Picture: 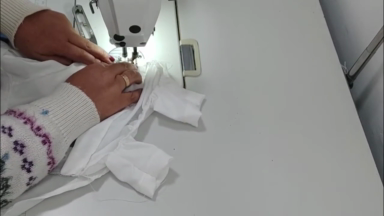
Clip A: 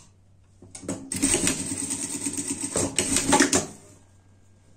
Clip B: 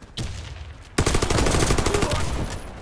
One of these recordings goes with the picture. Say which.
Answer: A